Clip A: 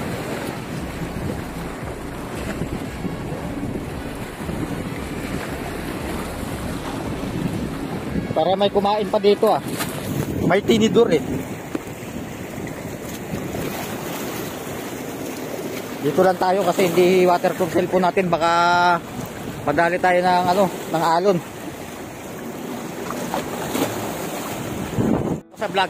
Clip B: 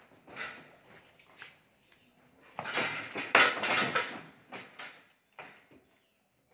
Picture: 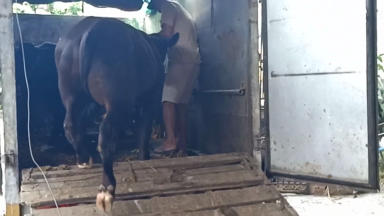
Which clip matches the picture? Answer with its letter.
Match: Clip B